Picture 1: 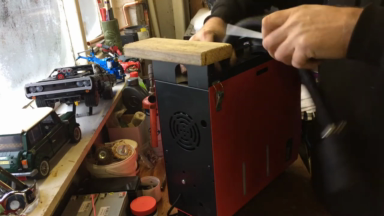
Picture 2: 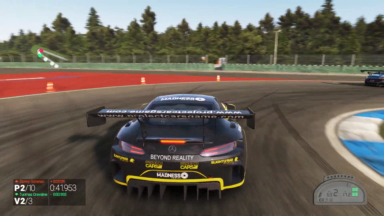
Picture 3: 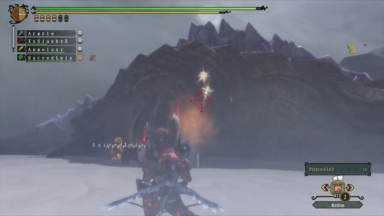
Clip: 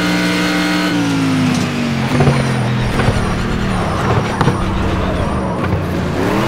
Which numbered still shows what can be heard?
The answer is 2